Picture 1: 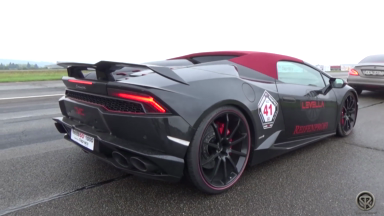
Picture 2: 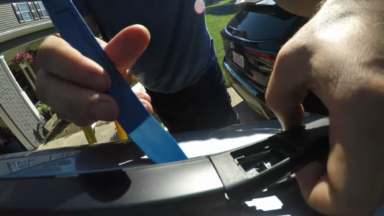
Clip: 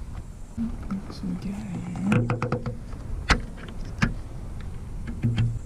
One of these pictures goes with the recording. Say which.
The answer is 2